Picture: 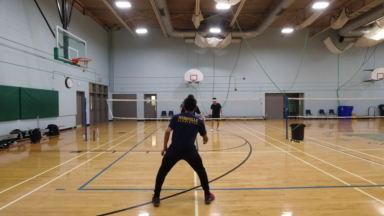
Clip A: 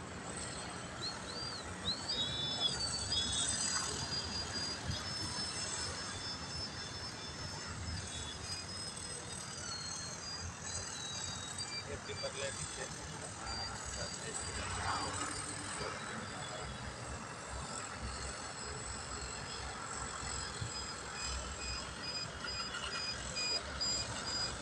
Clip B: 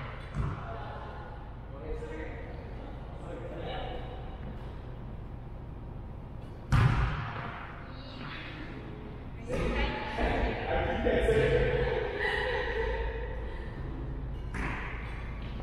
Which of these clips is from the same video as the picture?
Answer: B